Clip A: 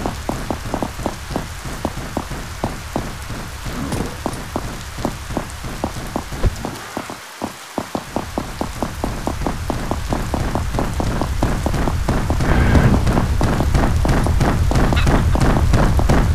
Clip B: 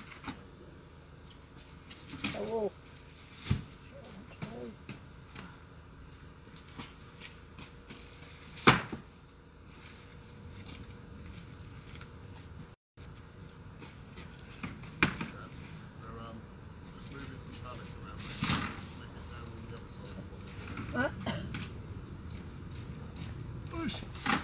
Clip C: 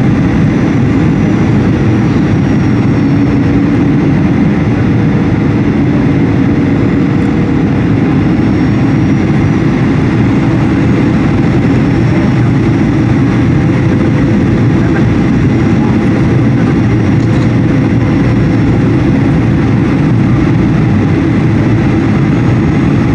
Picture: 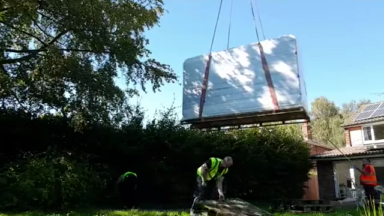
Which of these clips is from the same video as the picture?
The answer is B